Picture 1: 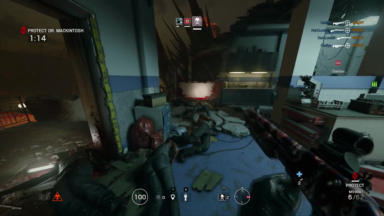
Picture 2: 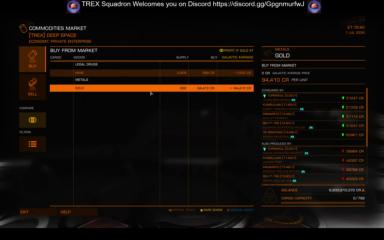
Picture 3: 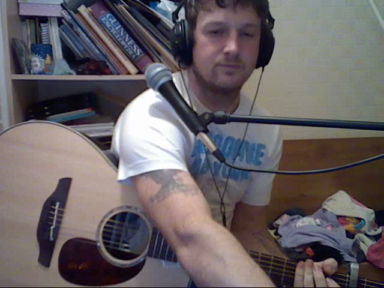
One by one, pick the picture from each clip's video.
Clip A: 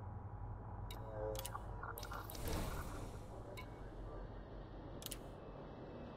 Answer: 2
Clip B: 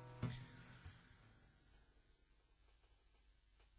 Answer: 3